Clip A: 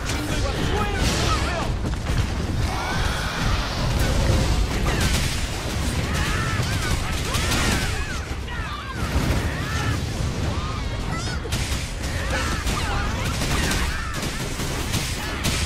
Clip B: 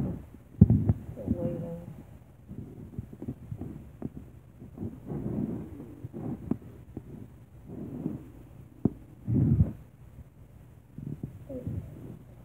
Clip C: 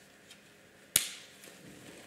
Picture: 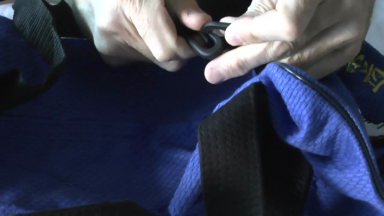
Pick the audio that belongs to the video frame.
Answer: C